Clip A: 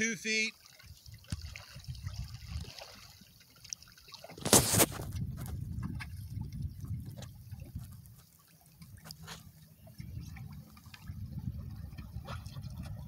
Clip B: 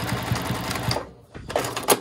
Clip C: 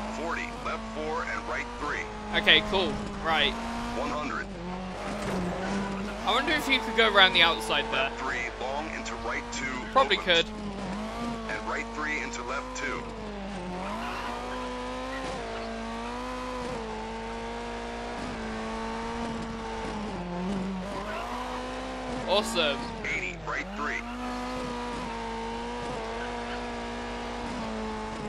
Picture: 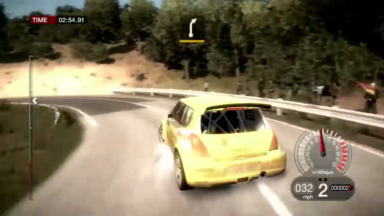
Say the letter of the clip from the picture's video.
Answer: C